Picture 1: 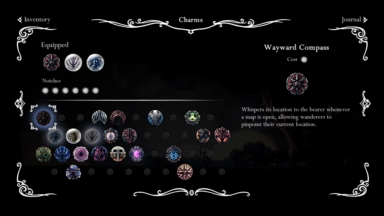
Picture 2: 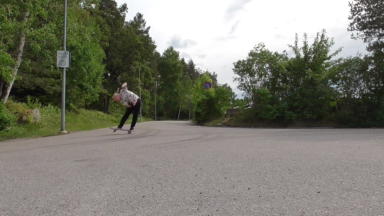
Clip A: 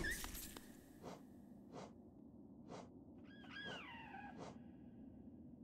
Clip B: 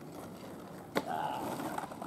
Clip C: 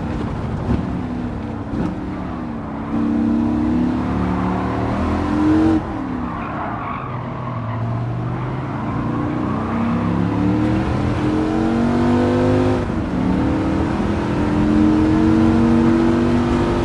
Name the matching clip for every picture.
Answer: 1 A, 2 B